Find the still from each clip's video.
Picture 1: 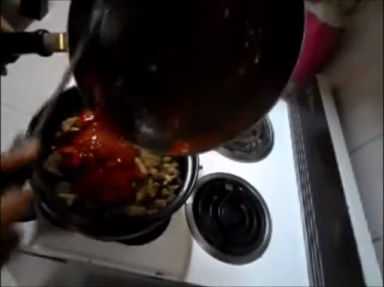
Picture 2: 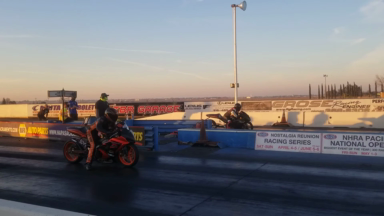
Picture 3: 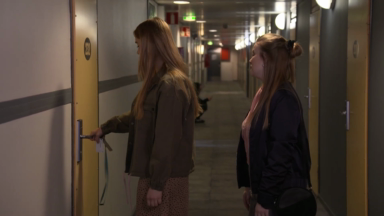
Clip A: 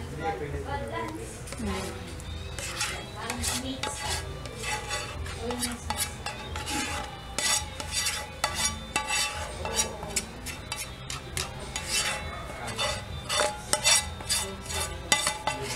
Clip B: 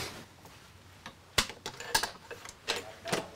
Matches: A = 1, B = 3